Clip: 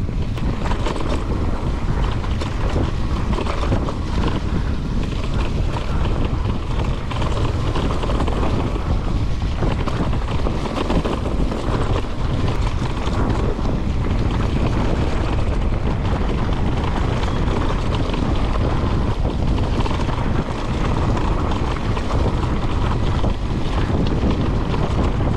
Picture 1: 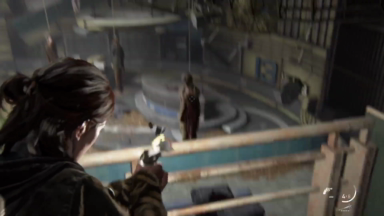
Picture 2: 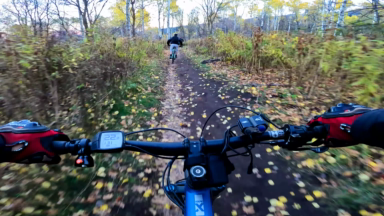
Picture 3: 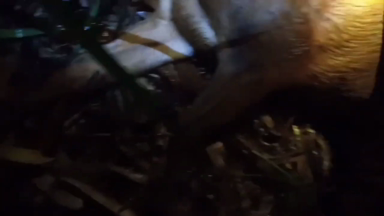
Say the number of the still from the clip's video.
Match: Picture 2